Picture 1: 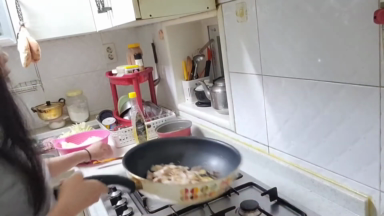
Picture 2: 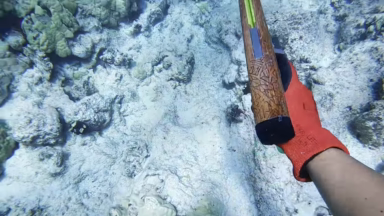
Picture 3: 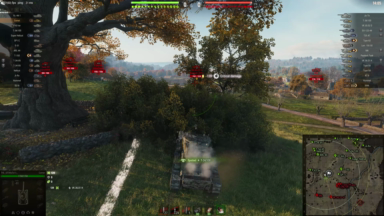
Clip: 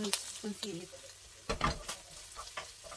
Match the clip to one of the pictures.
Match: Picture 1